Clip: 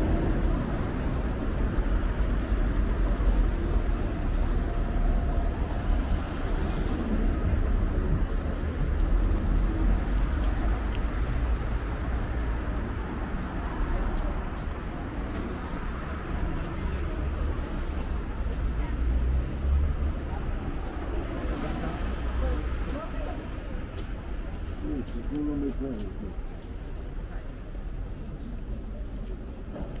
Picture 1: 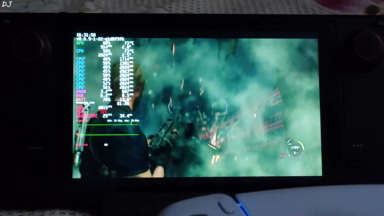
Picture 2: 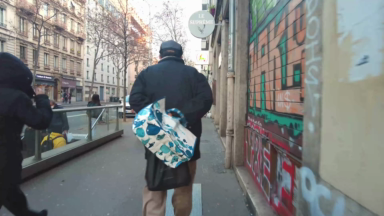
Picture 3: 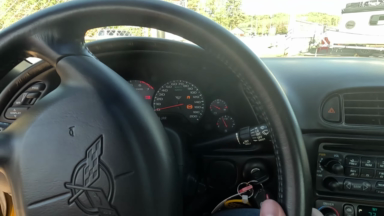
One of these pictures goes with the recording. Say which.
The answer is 2